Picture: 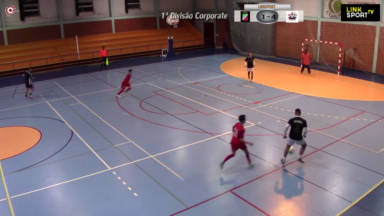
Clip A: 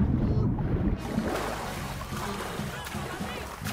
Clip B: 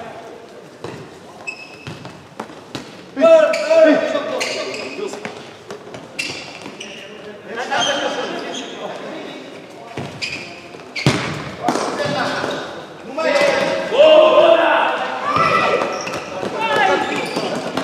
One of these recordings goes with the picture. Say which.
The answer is B